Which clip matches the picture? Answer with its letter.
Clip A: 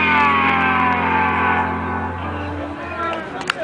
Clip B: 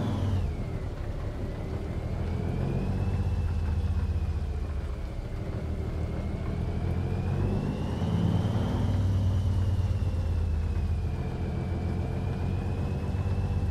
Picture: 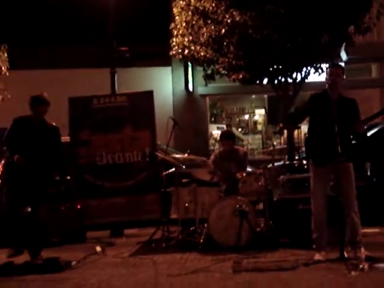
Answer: A